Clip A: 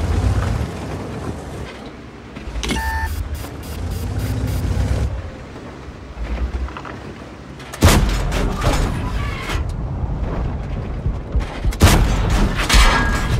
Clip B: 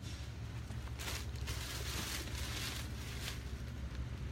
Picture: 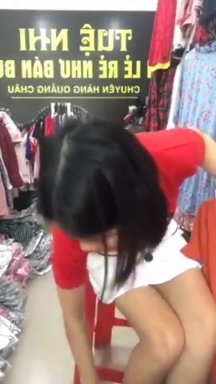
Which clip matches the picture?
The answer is B